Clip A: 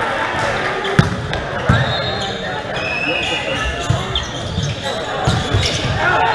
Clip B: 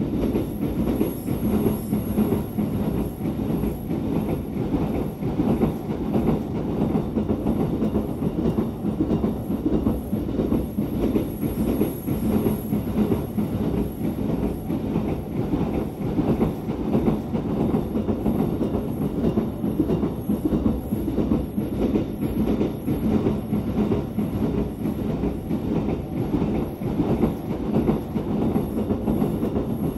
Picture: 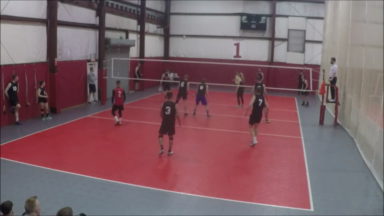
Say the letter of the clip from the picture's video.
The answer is A